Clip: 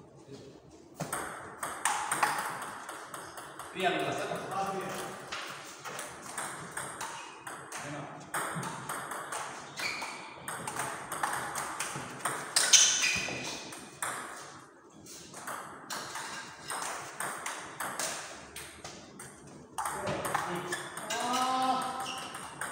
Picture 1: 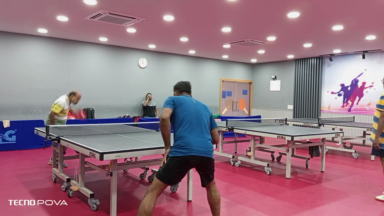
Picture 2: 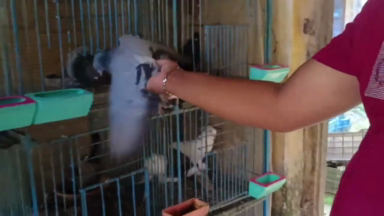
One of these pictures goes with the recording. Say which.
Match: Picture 1